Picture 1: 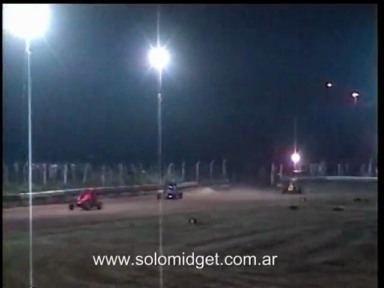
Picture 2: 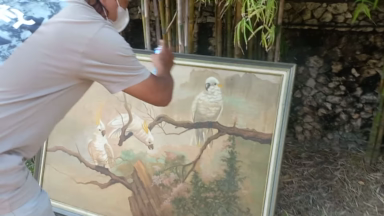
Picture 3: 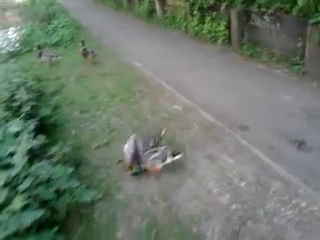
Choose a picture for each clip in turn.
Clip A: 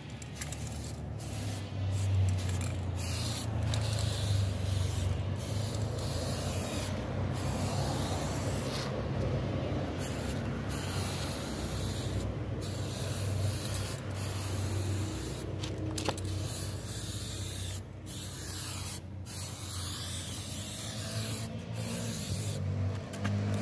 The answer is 2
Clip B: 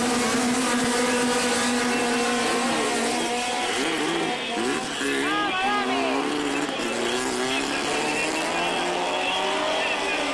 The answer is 1